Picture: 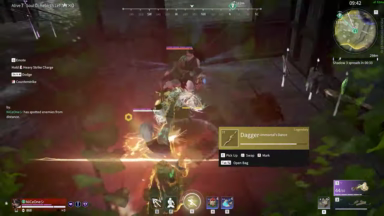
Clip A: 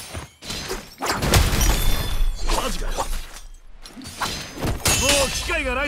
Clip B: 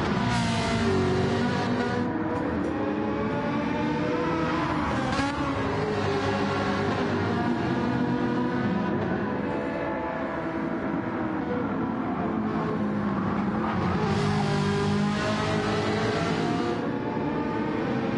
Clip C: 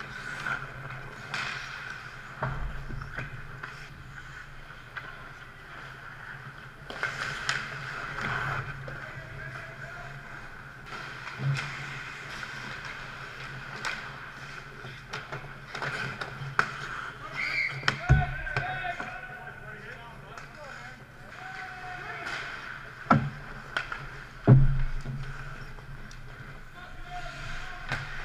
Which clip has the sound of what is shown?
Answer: A